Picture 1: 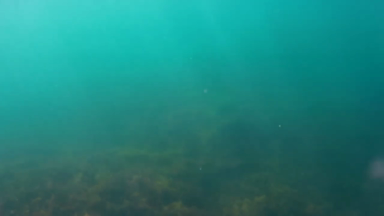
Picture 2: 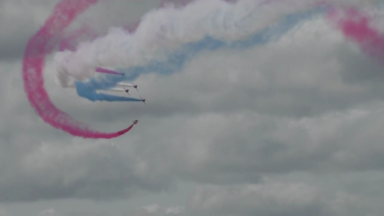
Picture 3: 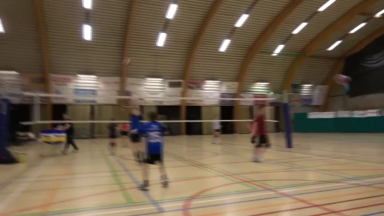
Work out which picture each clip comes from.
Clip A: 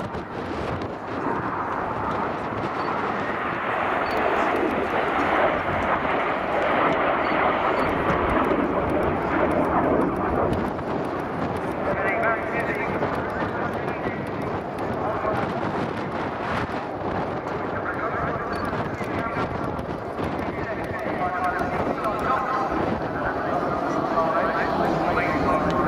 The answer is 2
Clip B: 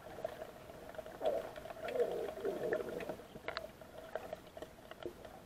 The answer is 1